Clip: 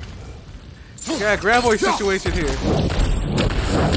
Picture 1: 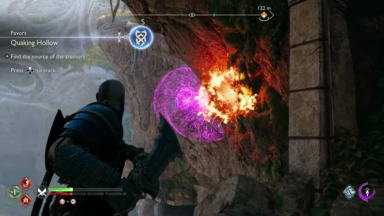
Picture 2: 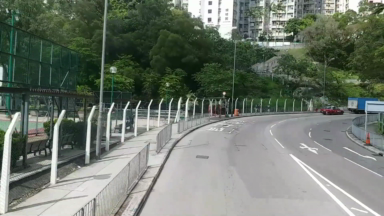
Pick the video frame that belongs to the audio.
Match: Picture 1